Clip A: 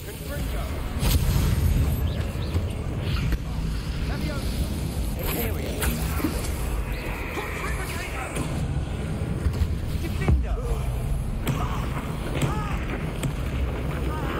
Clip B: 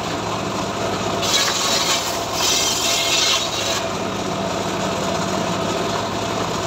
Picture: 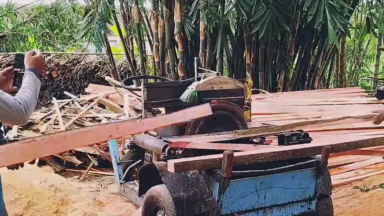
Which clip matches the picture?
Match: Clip B